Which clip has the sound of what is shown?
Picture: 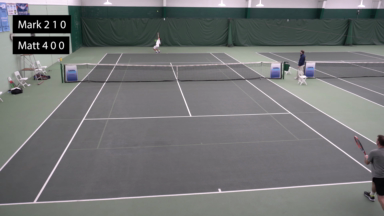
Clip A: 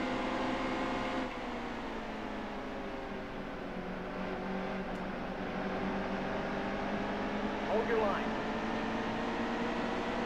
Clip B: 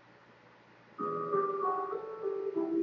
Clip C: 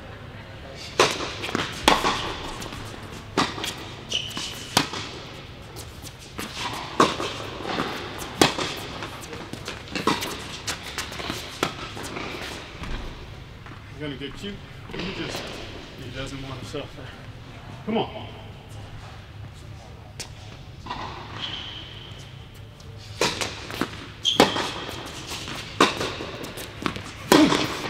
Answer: C